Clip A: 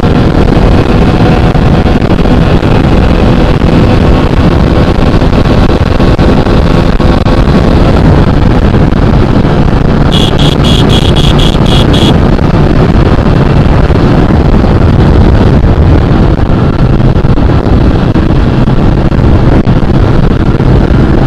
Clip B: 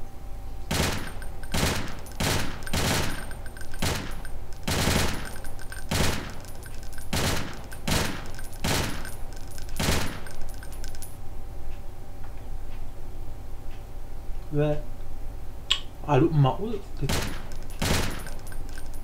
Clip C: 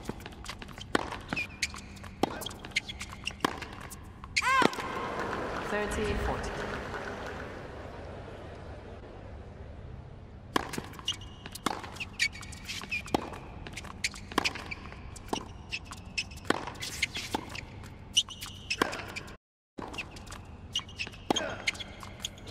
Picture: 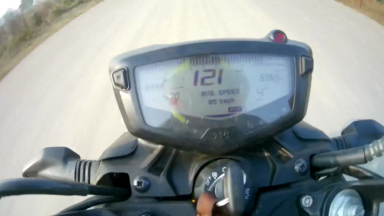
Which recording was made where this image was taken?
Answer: A